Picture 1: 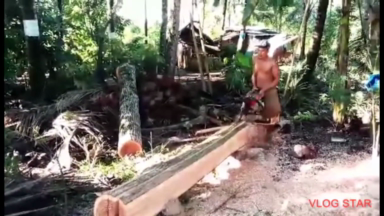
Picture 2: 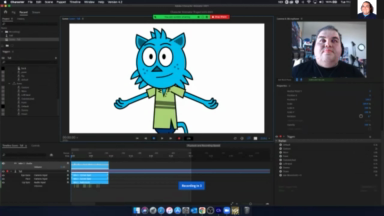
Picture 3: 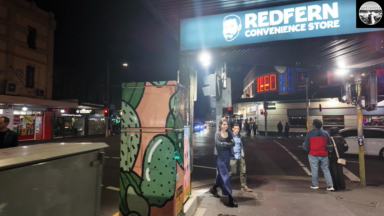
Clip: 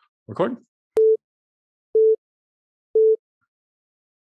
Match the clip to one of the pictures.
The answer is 2